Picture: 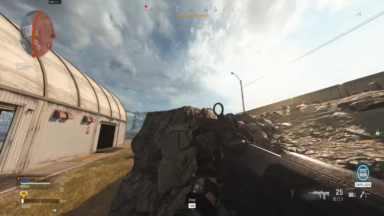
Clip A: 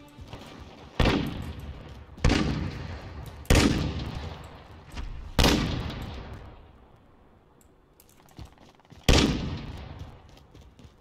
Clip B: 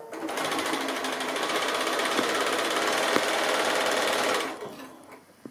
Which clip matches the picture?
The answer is A